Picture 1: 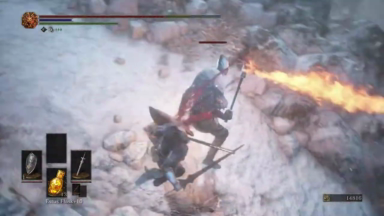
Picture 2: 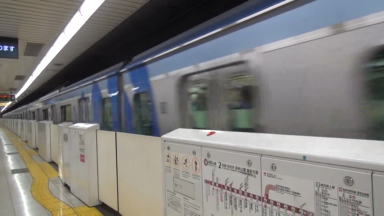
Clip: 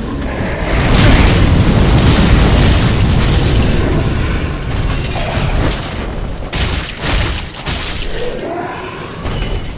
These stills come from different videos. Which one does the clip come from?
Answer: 1